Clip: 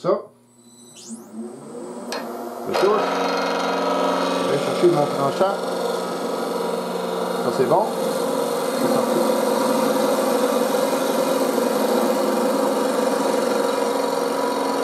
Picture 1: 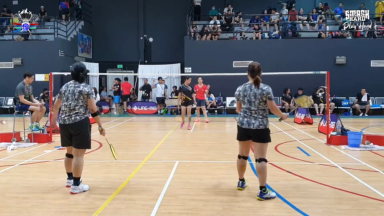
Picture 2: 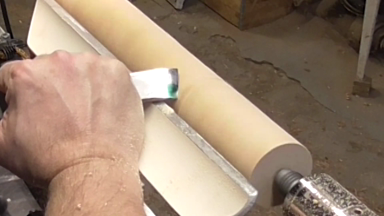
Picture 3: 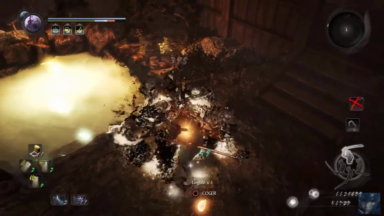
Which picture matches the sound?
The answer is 2